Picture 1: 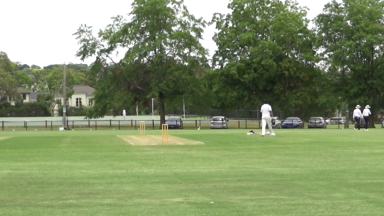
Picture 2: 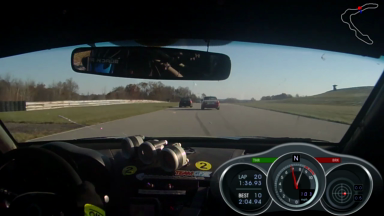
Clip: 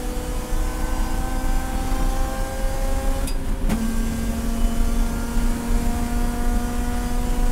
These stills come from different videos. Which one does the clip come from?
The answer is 2